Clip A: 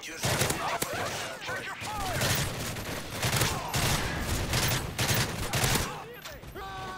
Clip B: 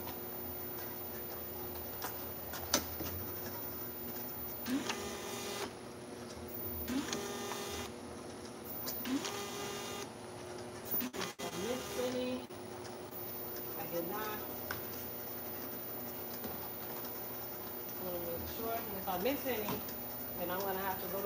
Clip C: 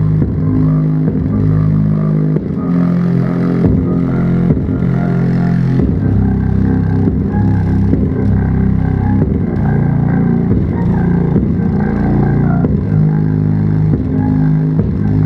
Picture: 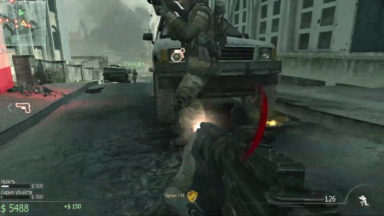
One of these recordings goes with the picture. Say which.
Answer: A